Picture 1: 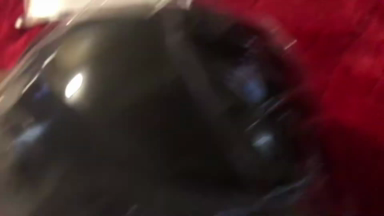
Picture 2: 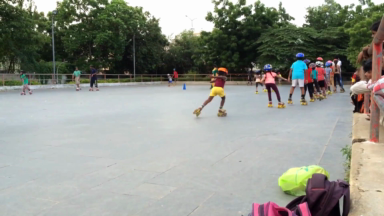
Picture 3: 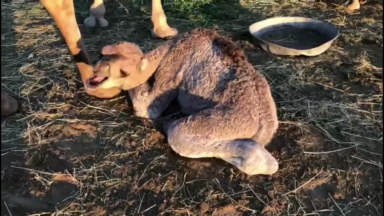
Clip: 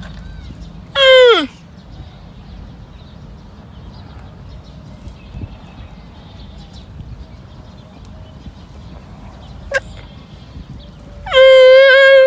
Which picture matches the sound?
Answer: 3